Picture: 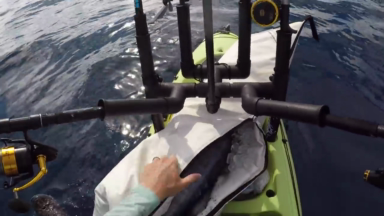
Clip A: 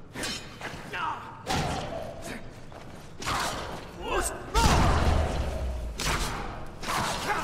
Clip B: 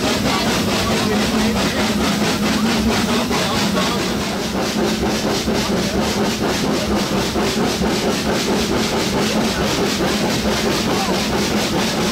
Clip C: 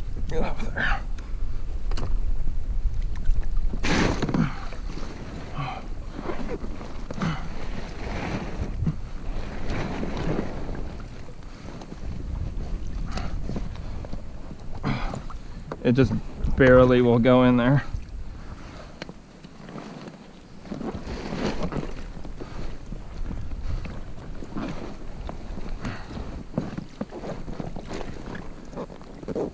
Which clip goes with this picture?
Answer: C